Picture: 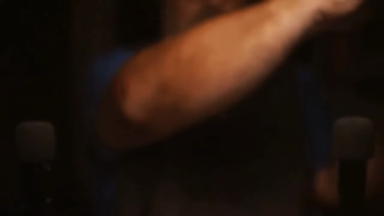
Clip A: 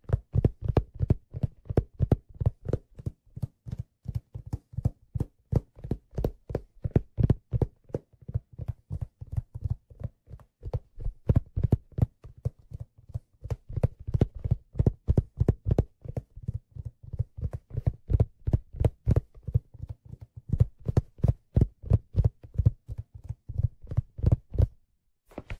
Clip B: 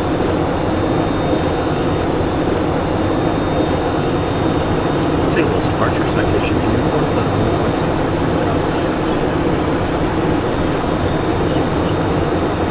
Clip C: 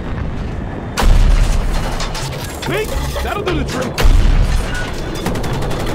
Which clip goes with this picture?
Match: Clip A